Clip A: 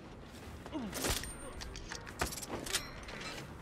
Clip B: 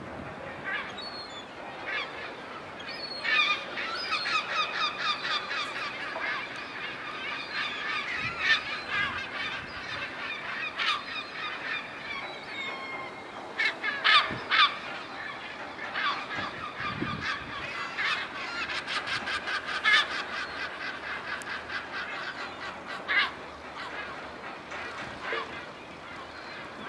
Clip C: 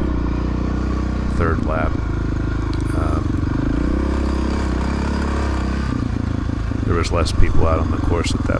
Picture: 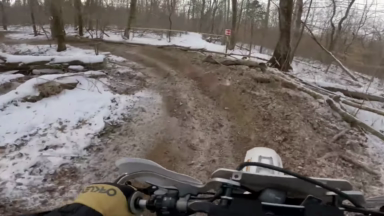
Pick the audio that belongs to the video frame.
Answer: C